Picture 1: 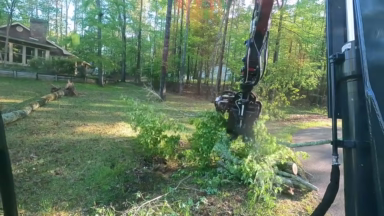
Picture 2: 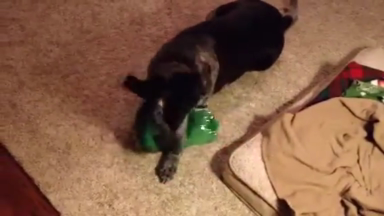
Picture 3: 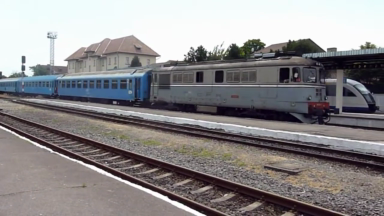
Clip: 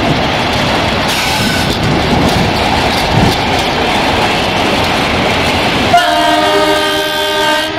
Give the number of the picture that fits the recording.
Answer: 3